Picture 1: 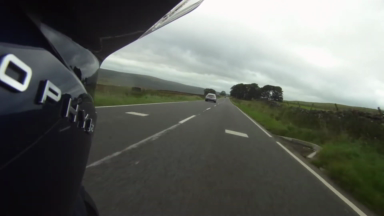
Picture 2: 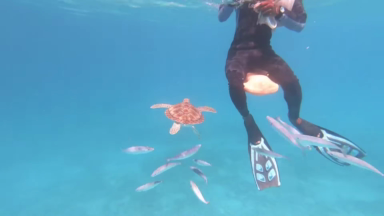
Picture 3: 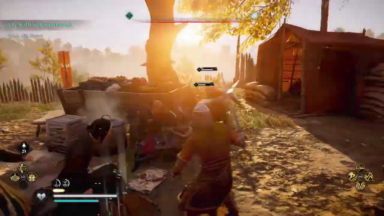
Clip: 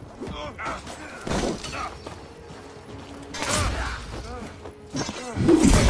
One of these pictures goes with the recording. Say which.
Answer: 3